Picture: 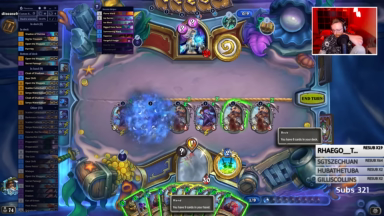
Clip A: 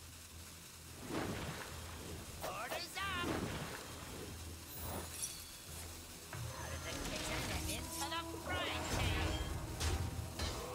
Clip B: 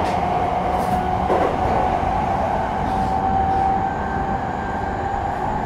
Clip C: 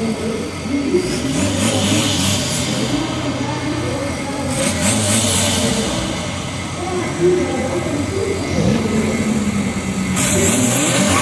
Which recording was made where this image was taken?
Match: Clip A